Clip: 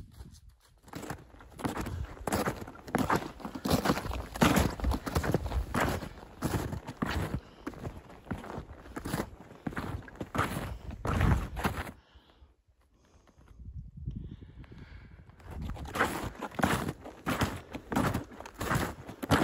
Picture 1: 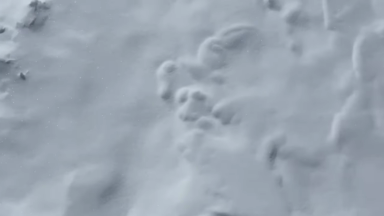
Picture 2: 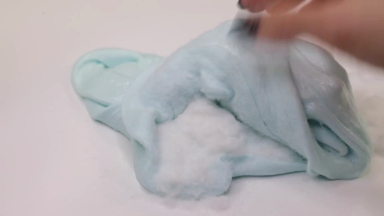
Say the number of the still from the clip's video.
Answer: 1